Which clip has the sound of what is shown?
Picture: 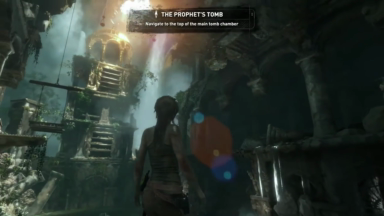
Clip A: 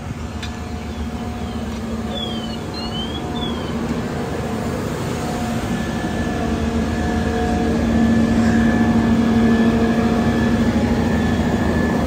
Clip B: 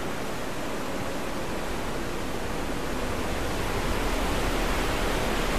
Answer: B